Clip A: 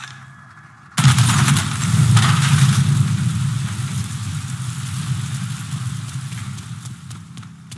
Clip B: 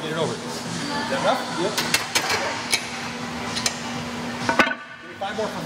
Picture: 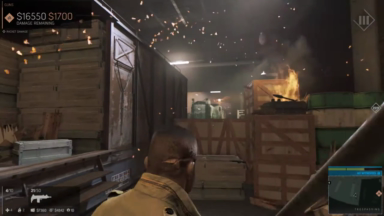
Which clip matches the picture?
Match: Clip A